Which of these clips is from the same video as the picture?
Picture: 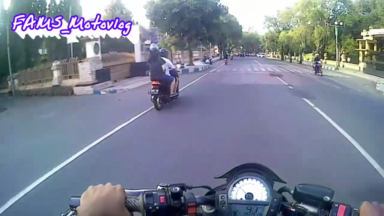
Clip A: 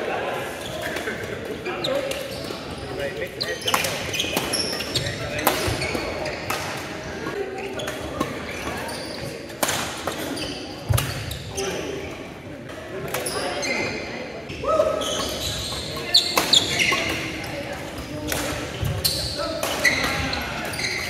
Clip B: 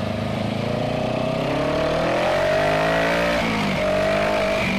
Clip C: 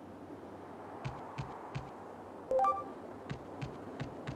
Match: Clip B